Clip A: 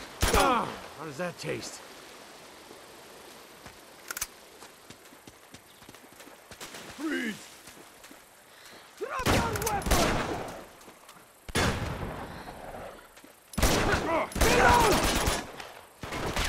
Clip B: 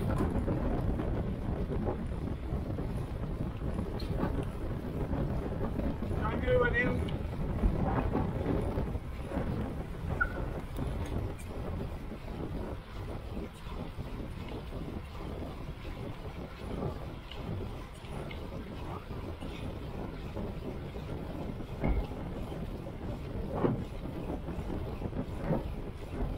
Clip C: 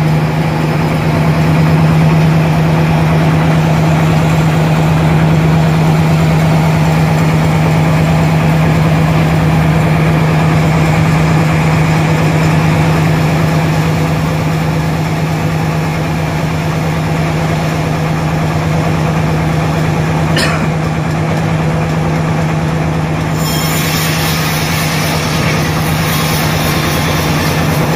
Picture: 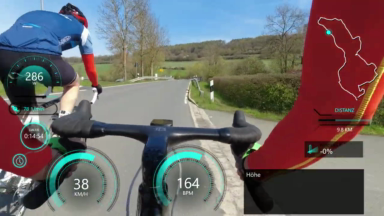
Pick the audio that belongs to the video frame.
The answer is B